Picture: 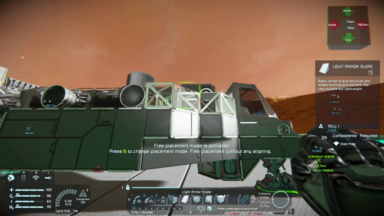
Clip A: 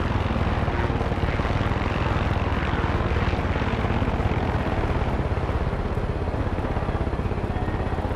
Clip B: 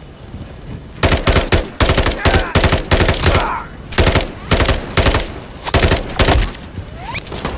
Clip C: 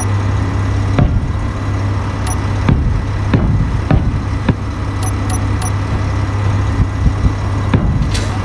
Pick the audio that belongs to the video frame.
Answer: C